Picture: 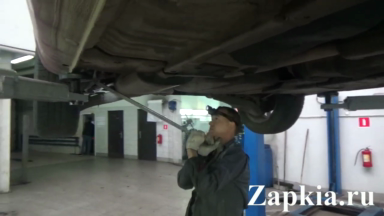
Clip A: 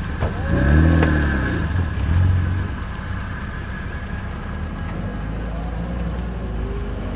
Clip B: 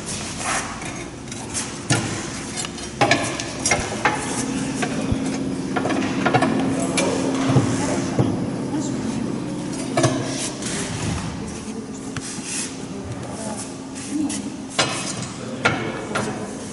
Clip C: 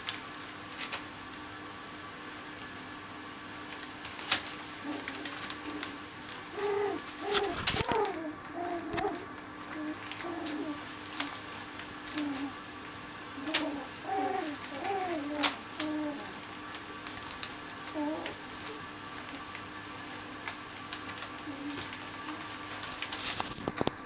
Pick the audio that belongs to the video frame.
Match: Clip B